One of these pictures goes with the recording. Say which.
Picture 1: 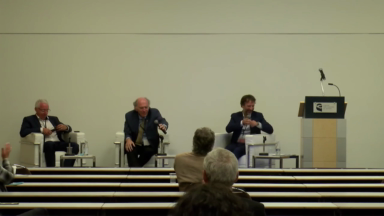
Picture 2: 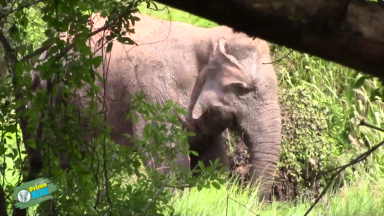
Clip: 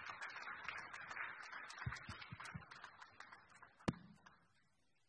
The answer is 1